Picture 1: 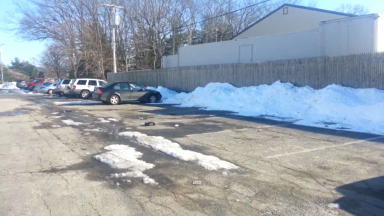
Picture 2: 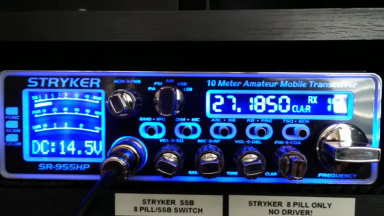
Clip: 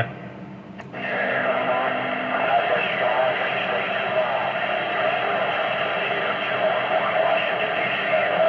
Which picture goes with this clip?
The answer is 2